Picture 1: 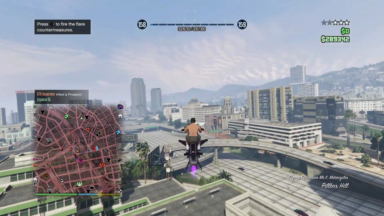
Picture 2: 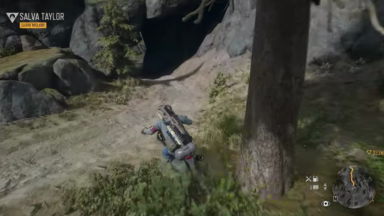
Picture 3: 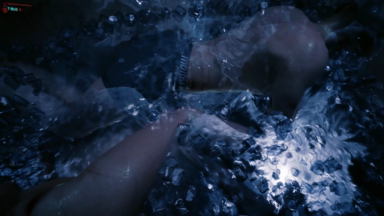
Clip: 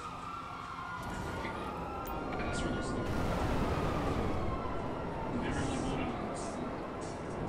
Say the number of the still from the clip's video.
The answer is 1